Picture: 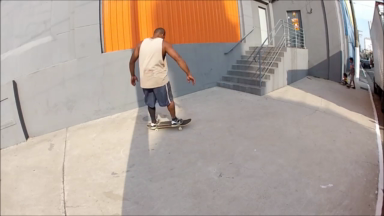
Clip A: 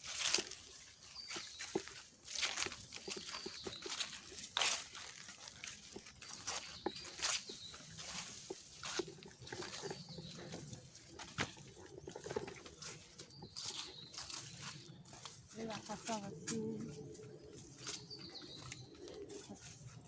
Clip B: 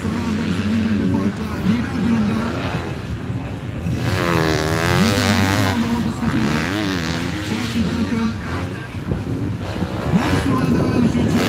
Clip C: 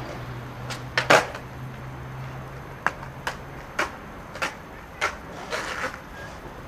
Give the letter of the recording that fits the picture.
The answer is C